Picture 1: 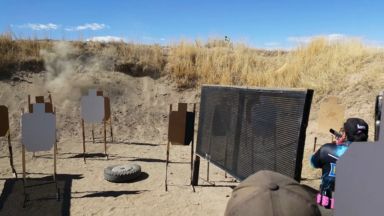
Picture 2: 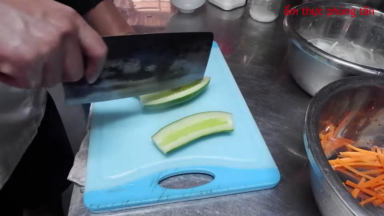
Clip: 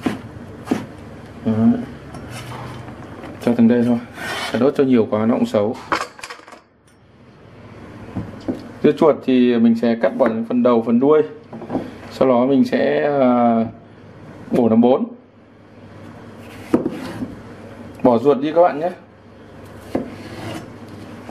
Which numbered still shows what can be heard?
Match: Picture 2